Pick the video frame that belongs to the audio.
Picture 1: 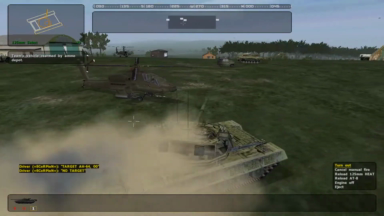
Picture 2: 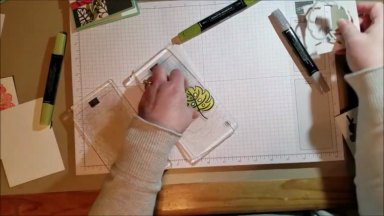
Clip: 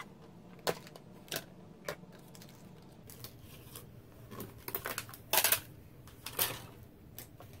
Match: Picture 2